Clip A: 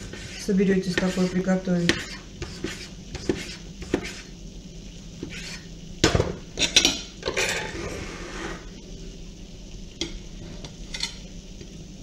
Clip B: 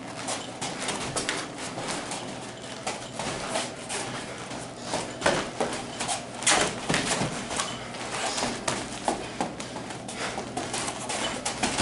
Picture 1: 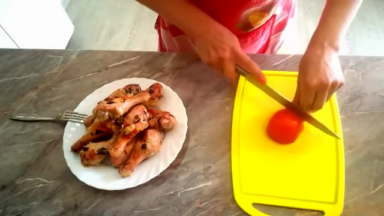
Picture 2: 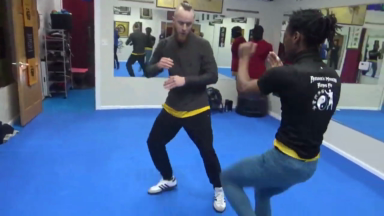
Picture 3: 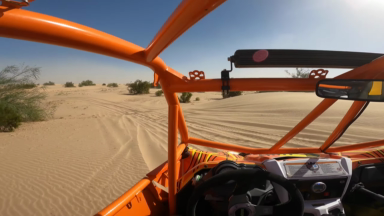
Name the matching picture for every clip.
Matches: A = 1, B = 2